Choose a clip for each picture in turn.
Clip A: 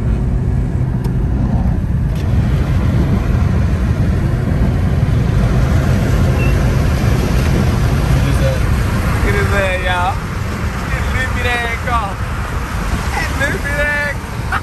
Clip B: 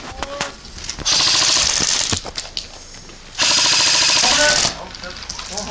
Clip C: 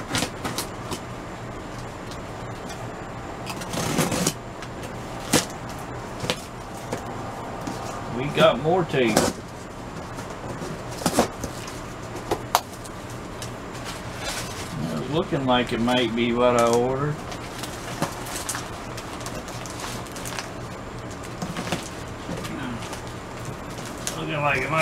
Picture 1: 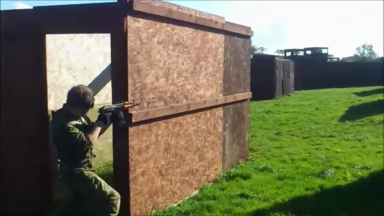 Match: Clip B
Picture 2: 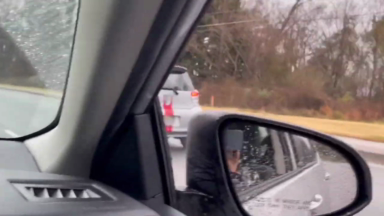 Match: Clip A